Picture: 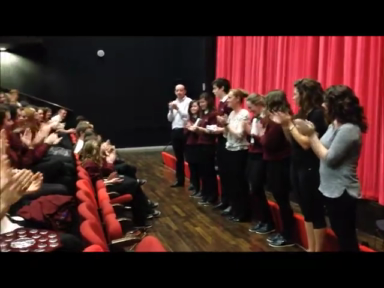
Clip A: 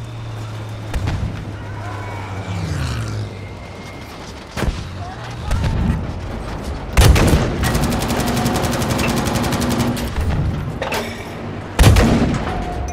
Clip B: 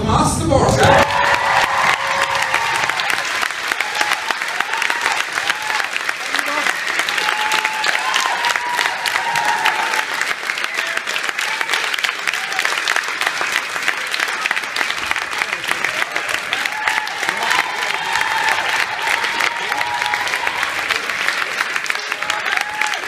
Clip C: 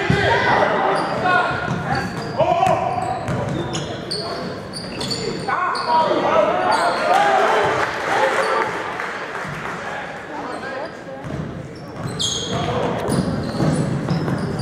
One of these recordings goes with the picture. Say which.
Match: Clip B